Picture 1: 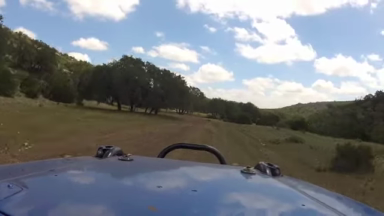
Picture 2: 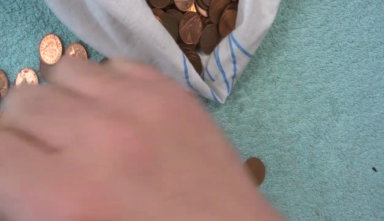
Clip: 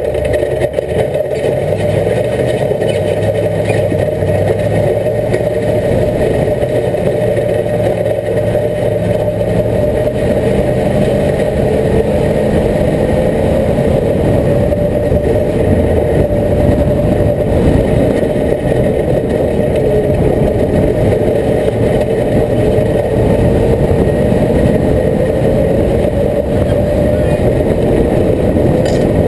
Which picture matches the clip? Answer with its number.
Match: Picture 1